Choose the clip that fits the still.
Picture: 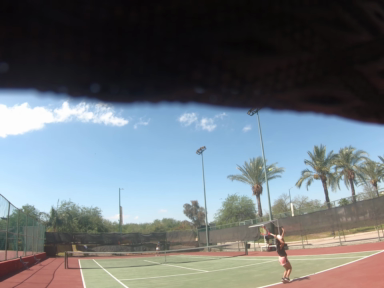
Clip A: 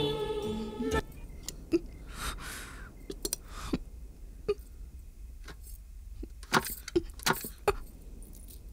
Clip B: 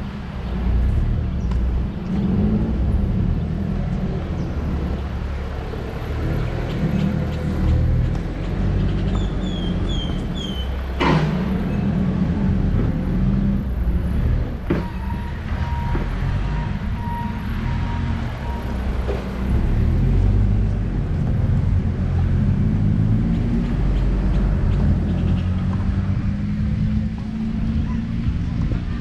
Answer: B